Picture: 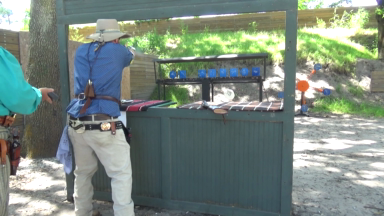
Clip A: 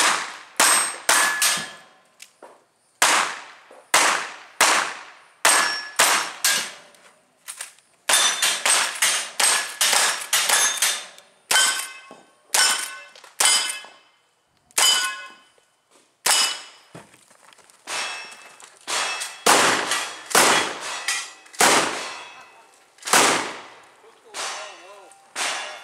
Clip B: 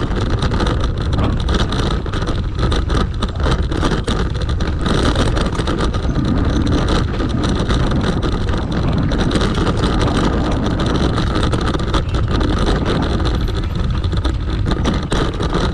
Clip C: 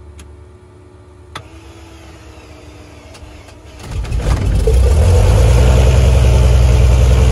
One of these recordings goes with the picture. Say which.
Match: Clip A